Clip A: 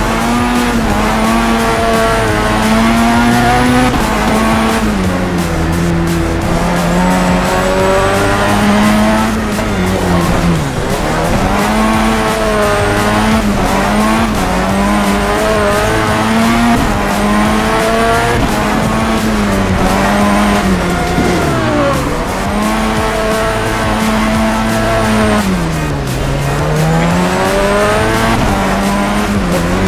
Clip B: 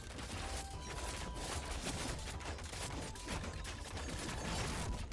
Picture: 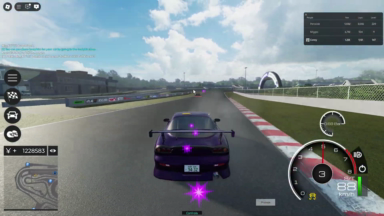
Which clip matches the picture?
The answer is A